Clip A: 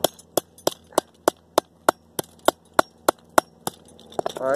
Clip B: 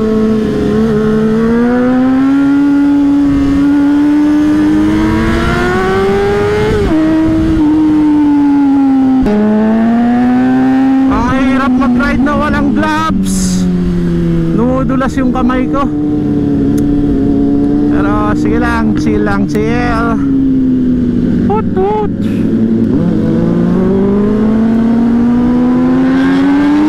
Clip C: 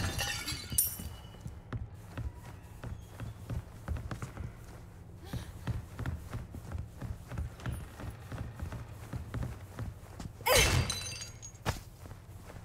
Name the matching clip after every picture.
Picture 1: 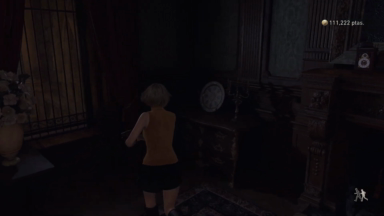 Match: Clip C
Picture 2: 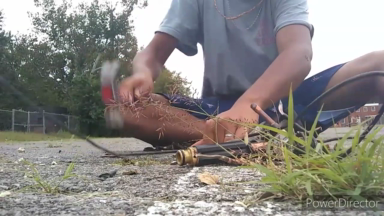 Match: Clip A